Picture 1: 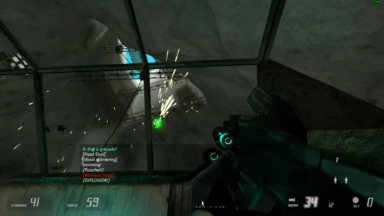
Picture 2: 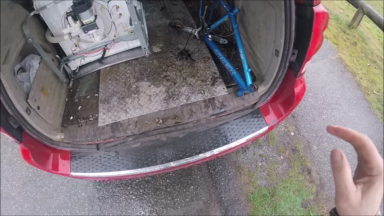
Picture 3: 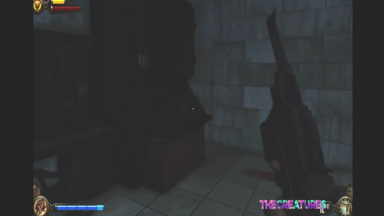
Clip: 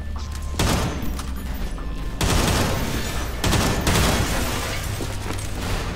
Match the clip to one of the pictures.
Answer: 1